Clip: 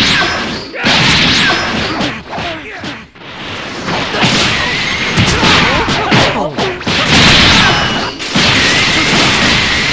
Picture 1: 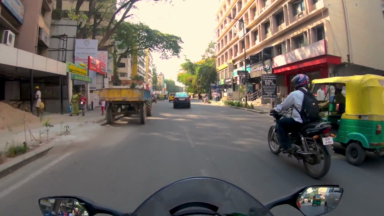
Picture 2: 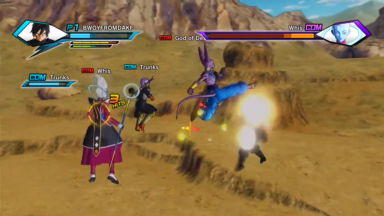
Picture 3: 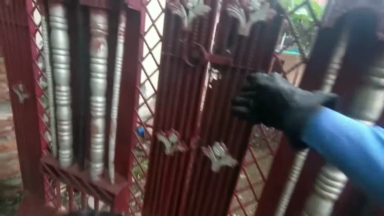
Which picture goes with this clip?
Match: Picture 2